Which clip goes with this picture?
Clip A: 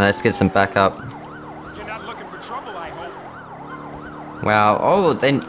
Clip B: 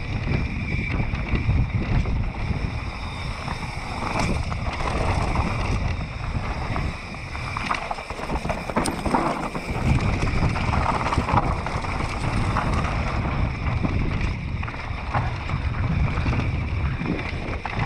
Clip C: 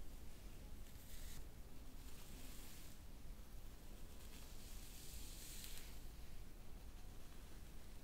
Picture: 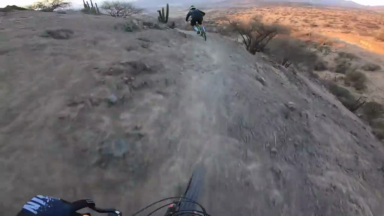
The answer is B